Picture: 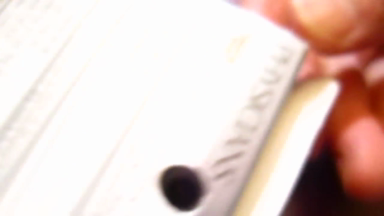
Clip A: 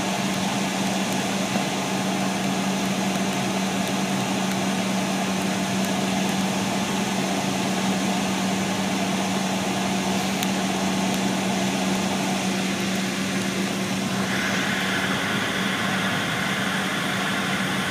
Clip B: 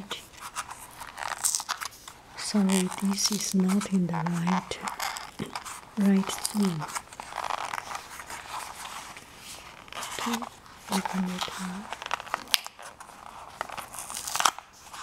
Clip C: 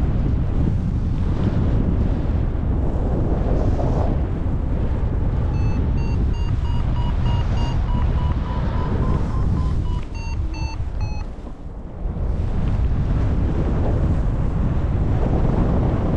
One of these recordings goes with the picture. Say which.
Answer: B